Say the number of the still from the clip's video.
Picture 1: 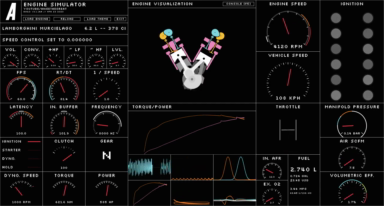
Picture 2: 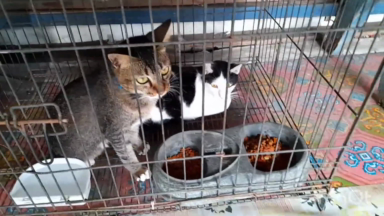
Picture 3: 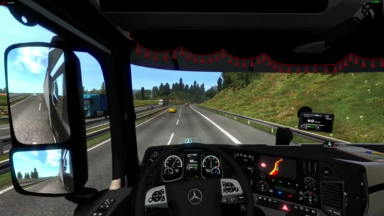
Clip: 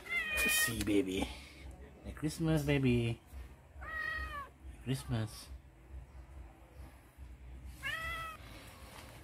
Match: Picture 2